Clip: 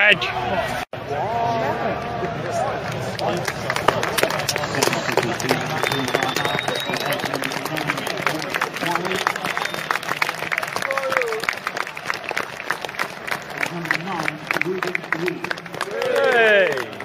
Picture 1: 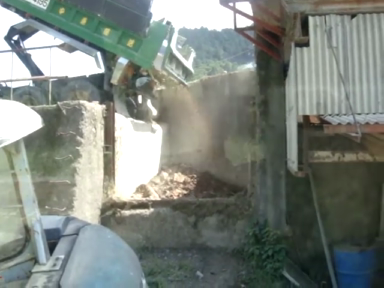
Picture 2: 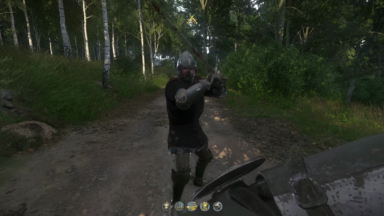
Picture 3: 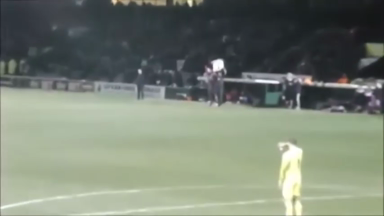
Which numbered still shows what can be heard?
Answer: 3